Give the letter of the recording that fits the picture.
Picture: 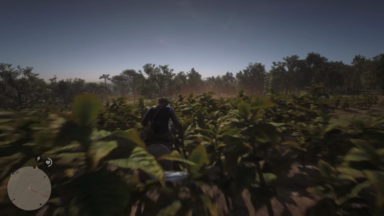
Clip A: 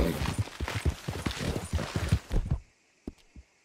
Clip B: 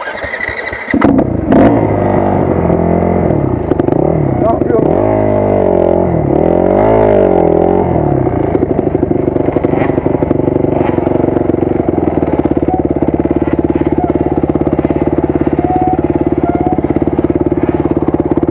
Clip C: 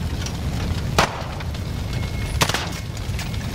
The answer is A